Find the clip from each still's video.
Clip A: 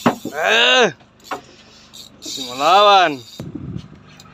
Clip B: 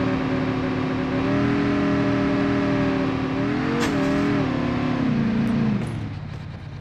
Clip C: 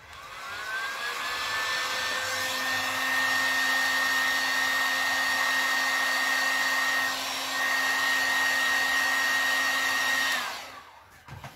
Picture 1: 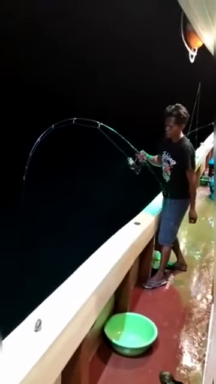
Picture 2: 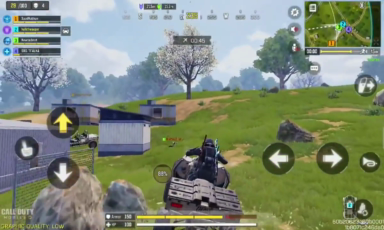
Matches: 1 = A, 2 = B